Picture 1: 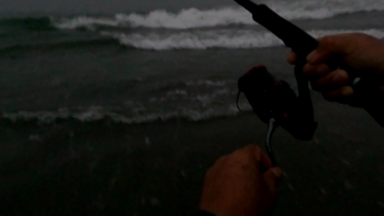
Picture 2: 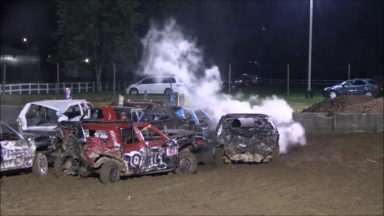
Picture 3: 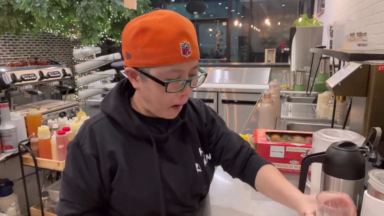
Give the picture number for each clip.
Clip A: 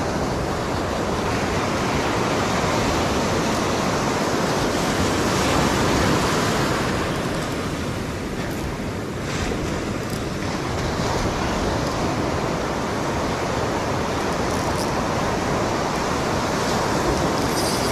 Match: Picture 1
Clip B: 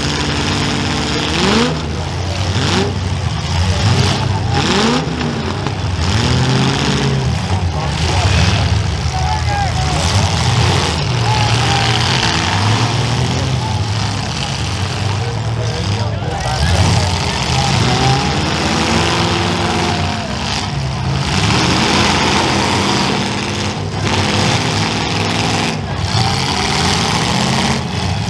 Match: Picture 2